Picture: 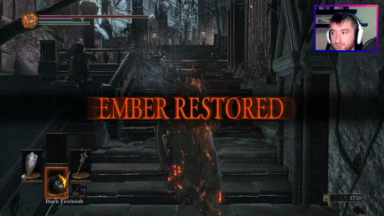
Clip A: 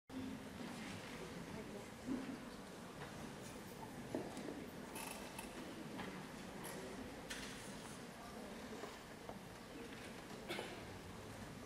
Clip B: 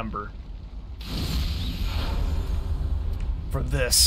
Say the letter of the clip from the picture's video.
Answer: B